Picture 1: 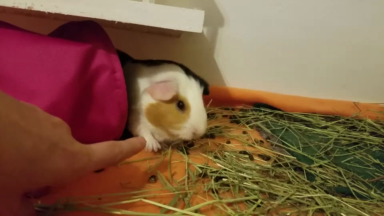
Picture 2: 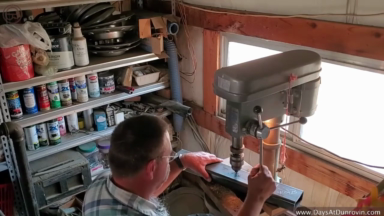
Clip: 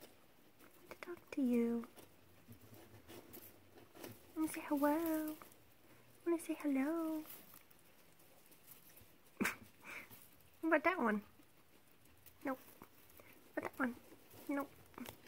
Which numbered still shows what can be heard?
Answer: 1